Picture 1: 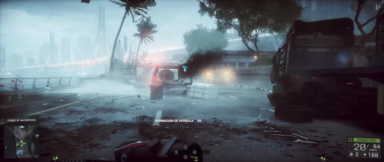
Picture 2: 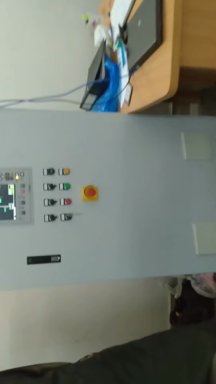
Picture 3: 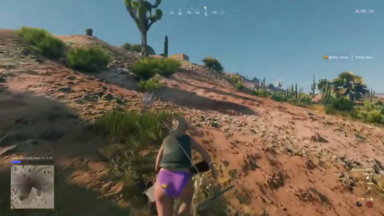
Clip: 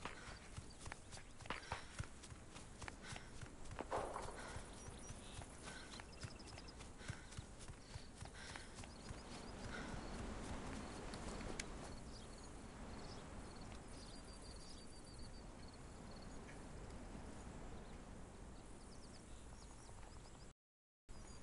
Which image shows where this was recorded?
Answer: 3